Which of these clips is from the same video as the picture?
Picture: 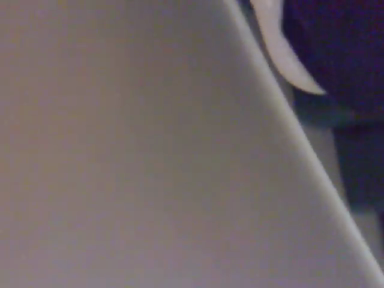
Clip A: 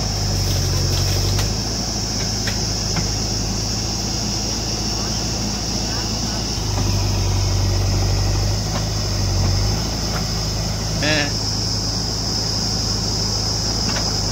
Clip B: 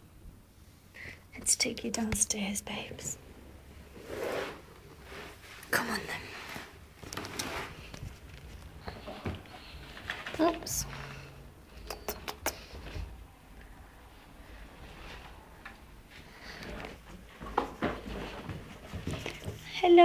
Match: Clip B